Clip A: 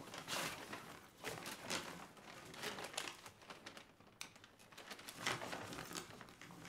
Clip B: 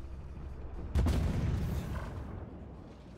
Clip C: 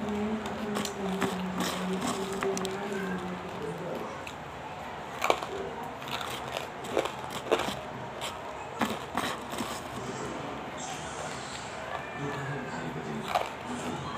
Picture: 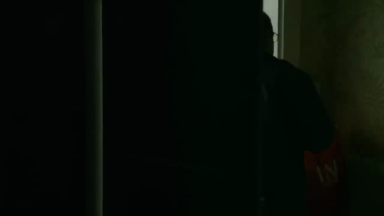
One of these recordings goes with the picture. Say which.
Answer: A